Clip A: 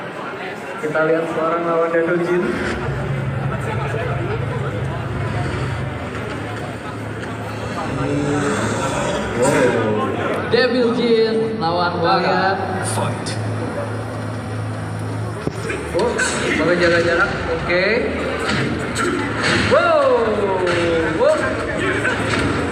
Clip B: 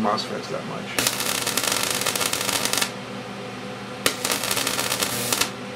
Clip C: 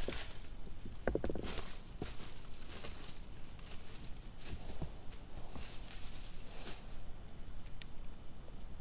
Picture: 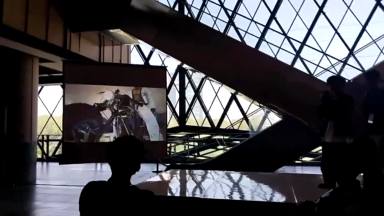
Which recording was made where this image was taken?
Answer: A